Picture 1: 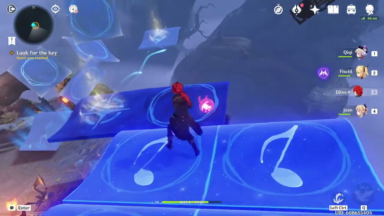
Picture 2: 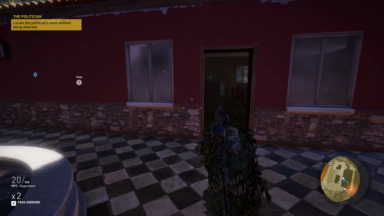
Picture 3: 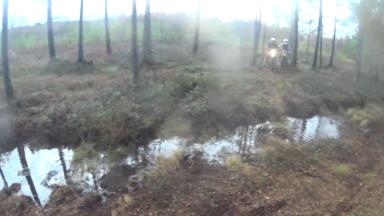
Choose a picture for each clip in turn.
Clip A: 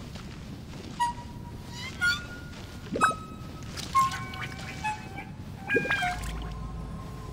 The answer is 1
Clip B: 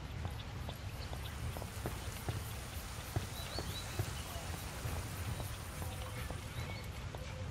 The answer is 2